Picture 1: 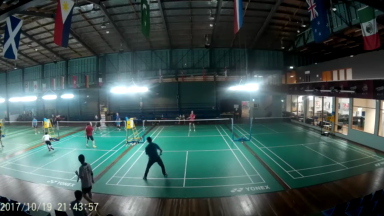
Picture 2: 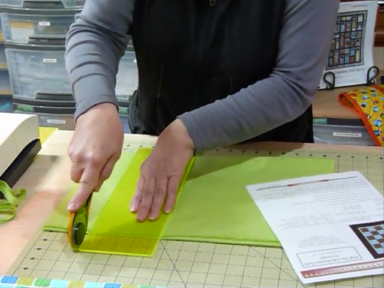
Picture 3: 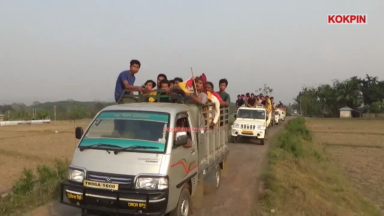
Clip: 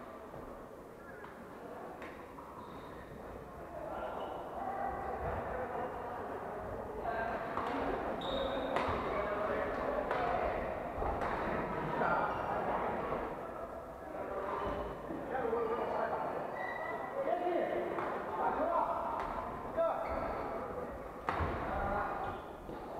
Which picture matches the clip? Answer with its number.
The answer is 1